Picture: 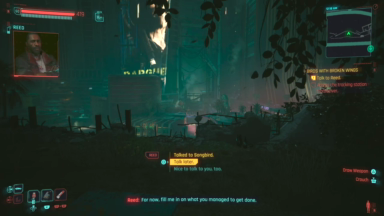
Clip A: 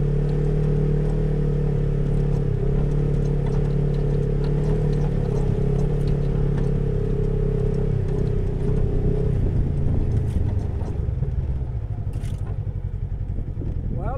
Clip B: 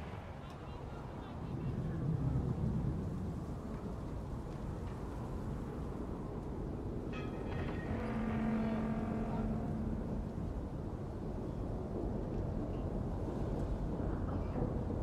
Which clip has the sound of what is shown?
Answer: B